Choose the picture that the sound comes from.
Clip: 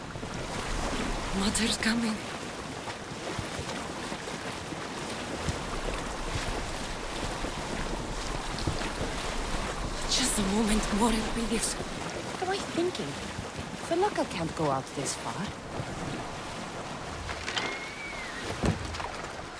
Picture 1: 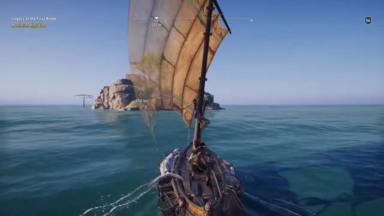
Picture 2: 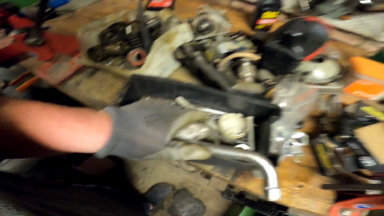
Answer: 1